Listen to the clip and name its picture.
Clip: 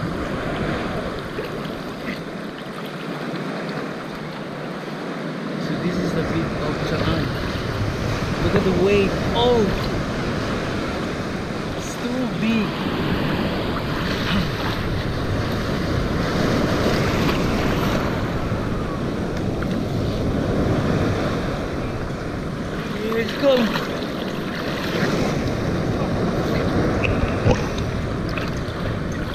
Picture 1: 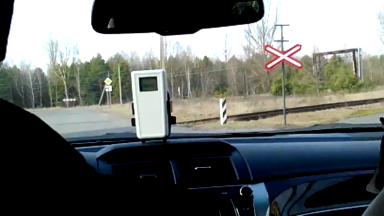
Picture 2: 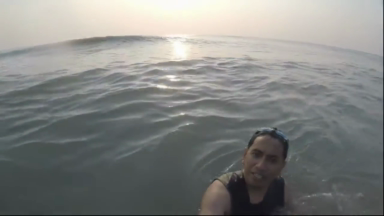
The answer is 2